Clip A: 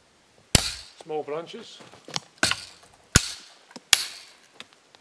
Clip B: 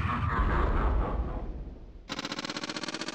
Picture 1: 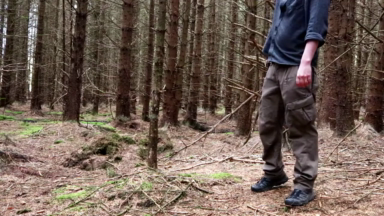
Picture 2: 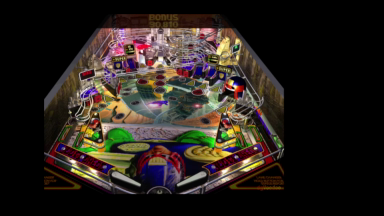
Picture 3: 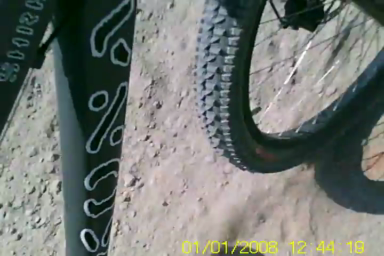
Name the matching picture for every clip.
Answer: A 1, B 2